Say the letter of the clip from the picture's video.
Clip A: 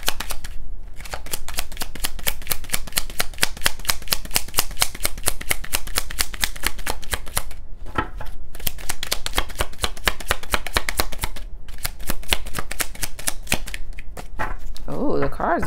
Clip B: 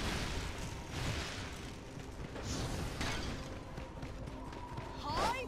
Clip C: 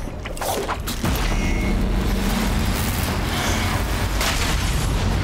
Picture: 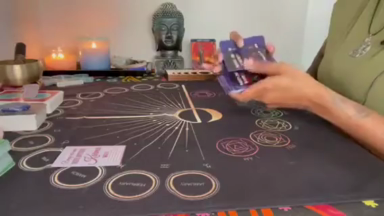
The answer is A